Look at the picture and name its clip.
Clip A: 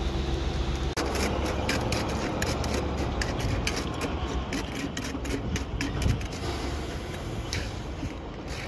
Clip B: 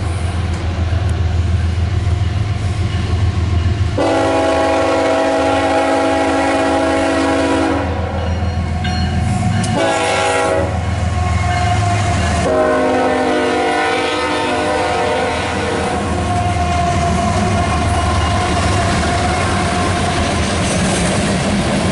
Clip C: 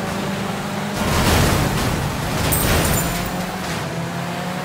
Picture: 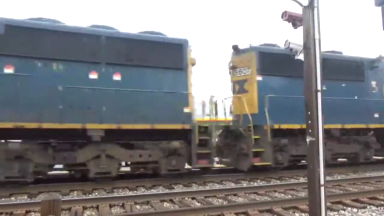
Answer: B